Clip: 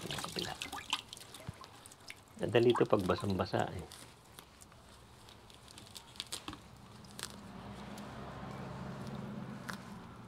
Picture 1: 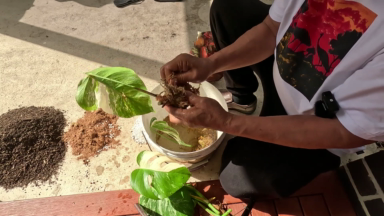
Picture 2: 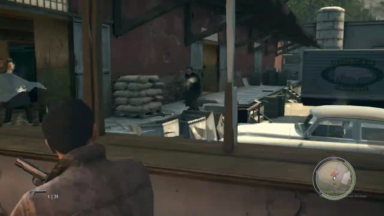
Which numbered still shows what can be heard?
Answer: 1